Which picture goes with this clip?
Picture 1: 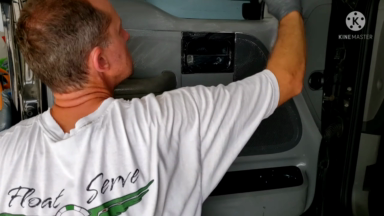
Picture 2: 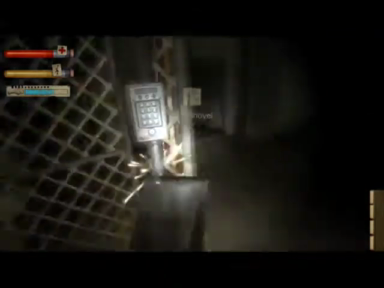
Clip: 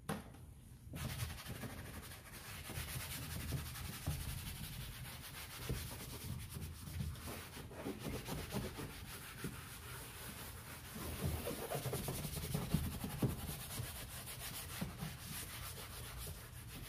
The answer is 1